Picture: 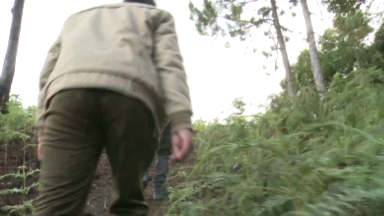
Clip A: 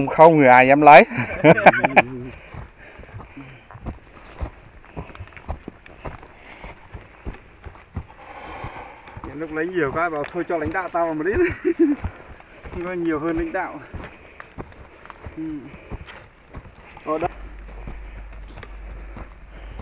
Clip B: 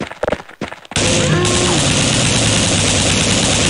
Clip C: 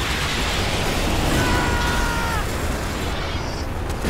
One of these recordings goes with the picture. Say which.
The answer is A